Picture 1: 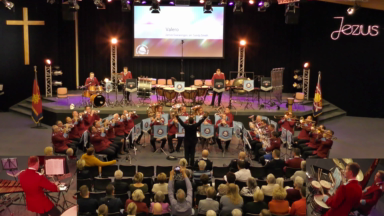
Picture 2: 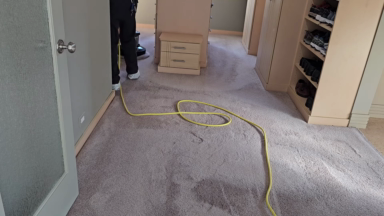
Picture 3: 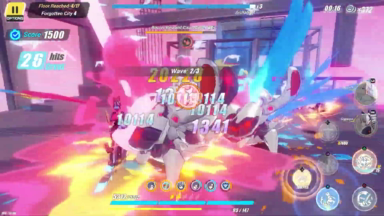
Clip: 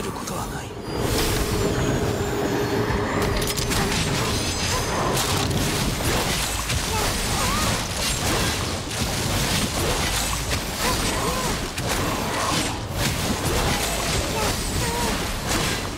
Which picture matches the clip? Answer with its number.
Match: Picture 3